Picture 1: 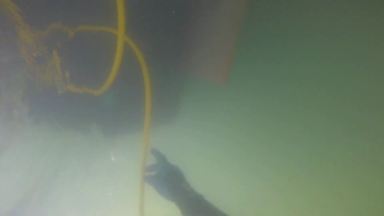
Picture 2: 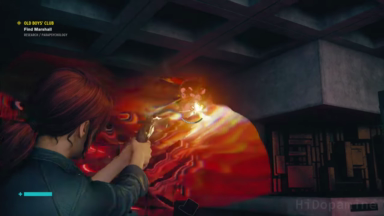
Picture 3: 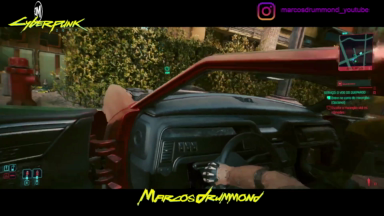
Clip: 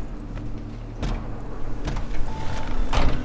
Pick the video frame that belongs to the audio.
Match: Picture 3